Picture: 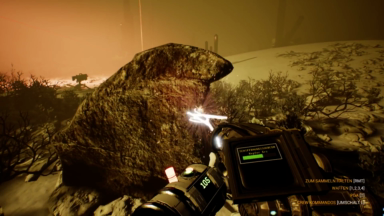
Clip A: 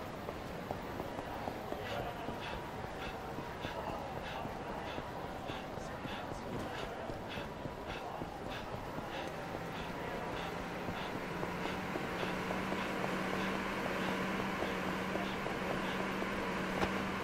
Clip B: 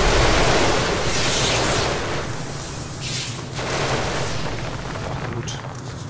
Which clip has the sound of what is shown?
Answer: B